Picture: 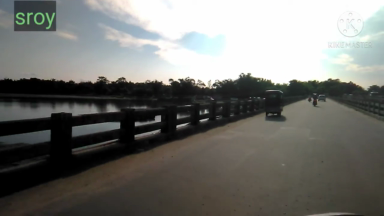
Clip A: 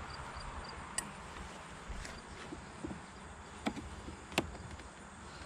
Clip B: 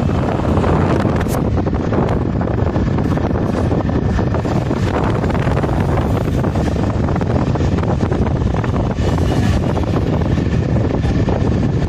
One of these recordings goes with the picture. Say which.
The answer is B